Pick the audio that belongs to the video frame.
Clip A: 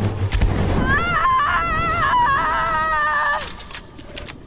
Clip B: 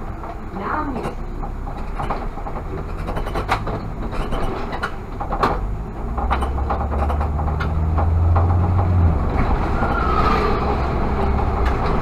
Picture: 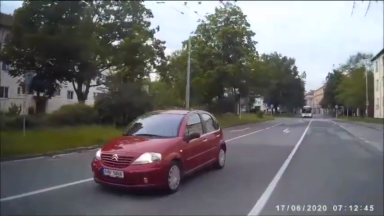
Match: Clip B